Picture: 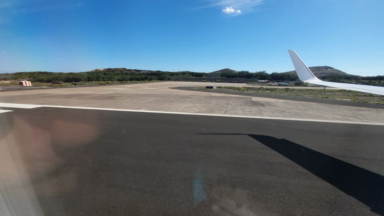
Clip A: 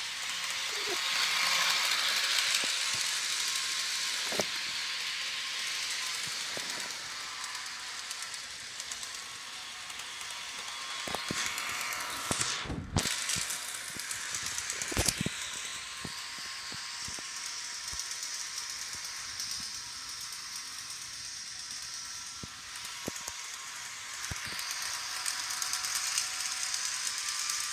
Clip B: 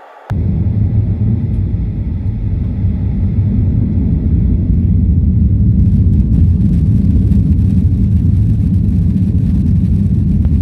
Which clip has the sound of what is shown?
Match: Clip B